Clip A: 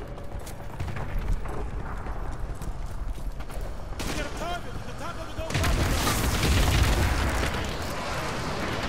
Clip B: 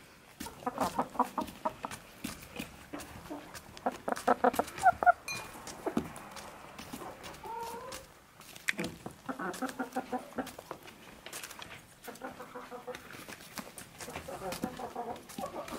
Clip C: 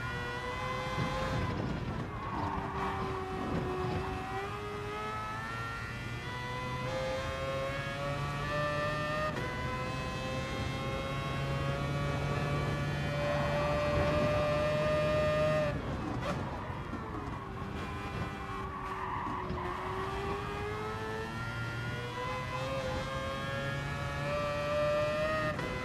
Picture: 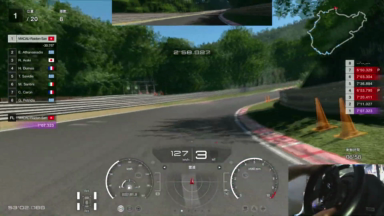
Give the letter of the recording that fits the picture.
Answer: C